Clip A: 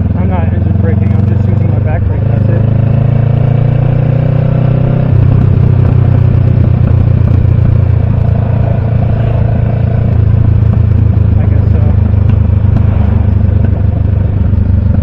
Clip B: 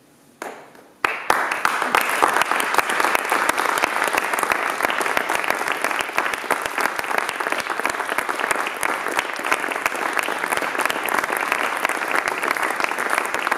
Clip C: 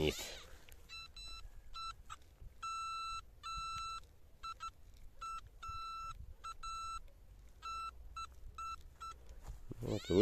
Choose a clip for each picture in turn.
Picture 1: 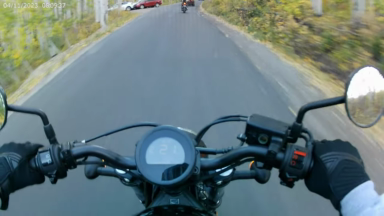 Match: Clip A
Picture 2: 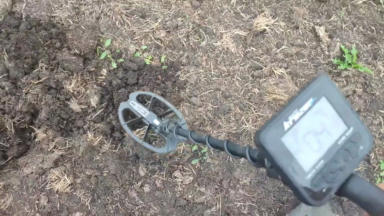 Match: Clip C